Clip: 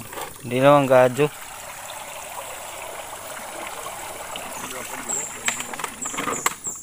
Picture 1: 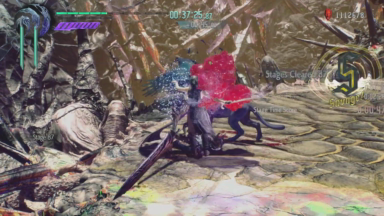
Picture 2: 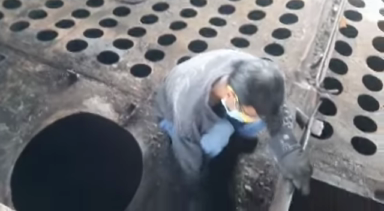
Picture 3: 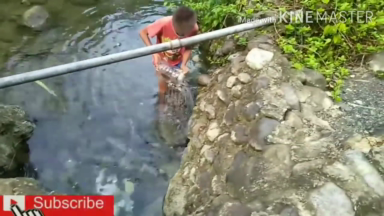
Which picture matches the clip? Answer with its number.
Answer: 3